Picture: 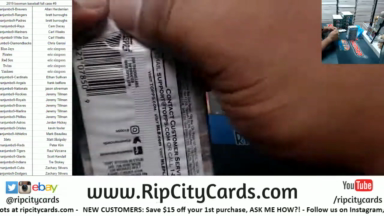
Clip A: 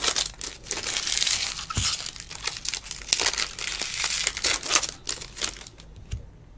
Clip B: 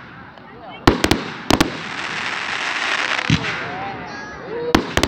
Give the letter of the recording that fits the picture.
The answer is A